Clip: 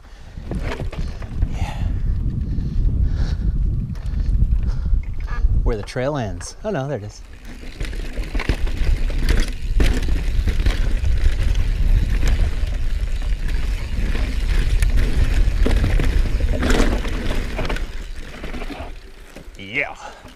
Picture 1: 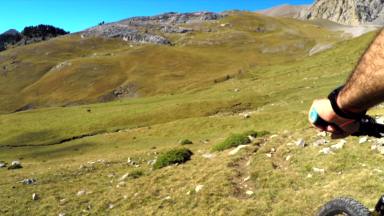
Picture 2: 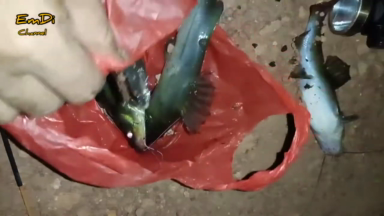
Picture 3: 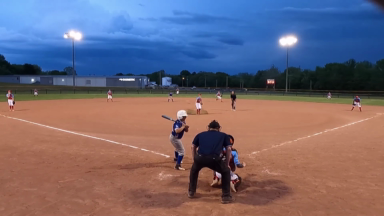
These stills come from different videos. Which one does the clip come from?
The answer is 1